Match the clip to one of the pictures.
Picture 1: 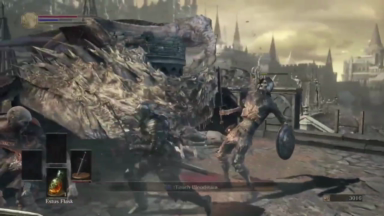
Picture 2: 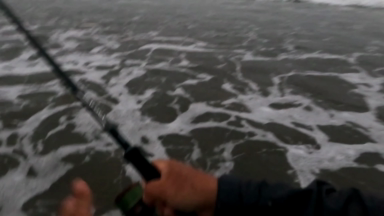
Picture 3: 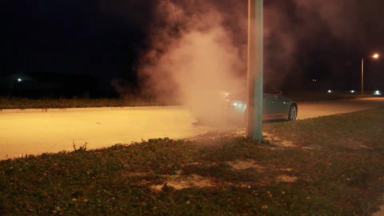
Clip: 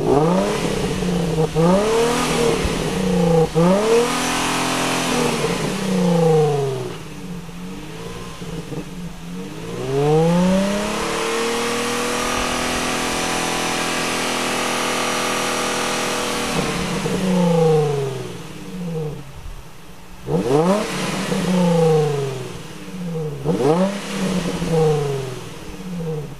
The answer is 3